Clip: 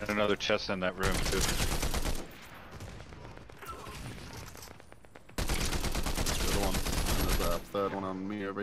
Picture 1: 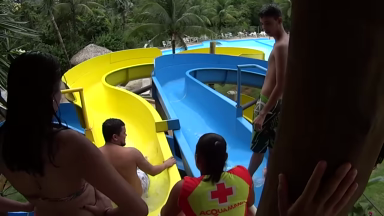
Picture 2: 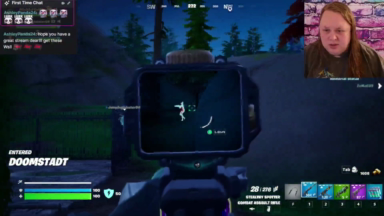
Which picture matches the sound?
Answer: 2